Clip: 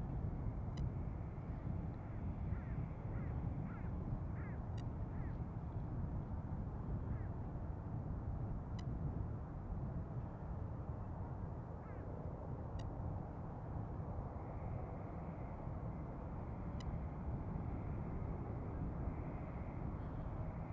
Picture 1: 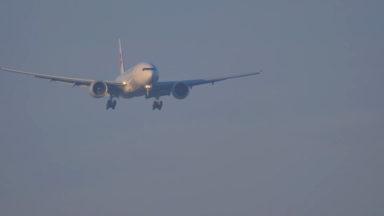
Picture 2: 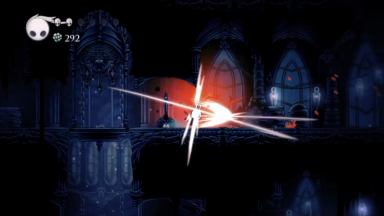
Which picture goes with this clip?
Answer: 1